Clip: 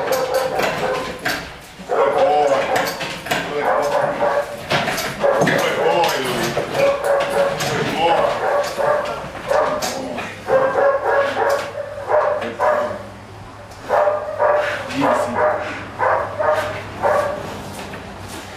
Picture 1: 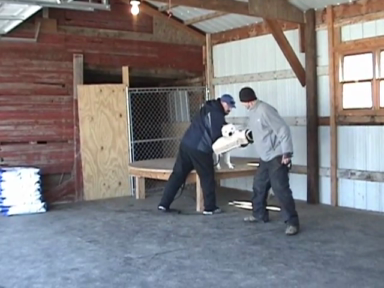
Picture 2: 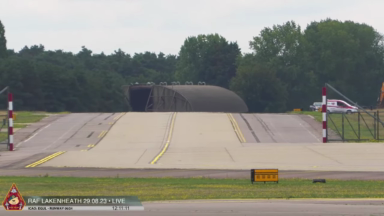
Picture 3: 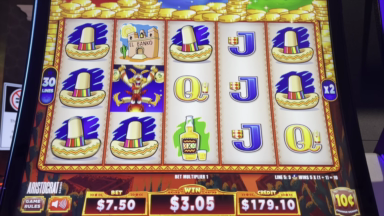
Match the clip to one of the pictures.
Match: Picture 1